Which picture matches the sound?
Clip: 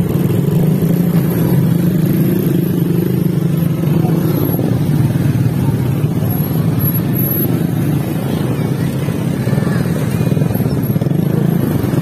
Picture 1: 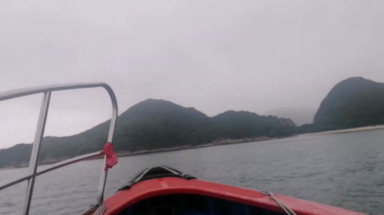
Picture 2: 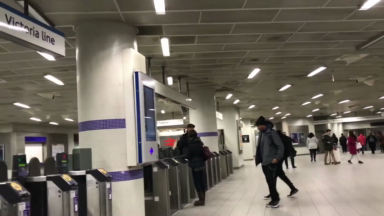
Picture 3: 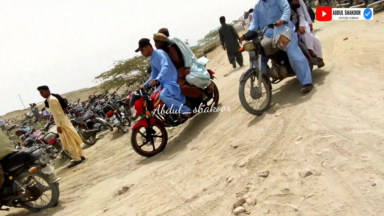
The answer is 3